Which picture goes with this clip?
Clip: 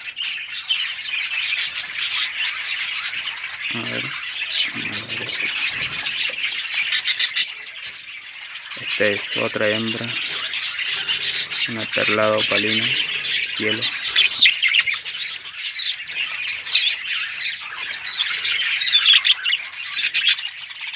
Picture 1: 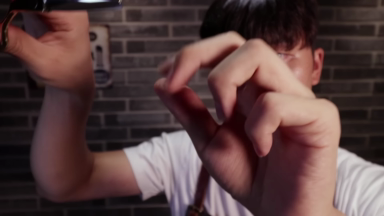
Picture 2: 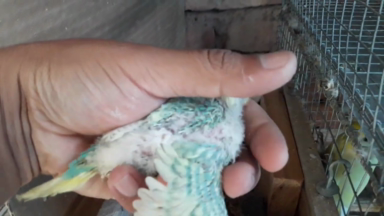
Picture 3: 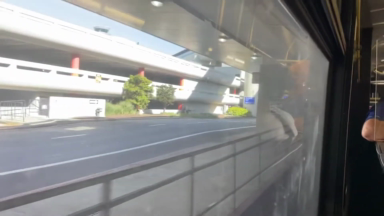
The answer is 2